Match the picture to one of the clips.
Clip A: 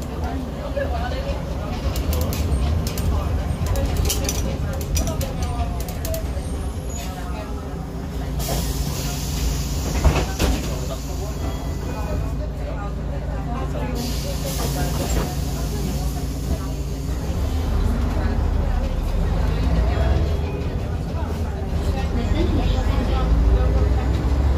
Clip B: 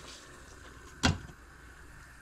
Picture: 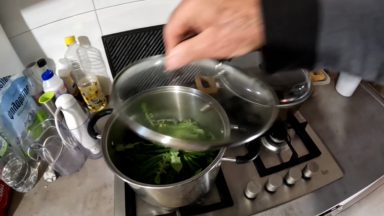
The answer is B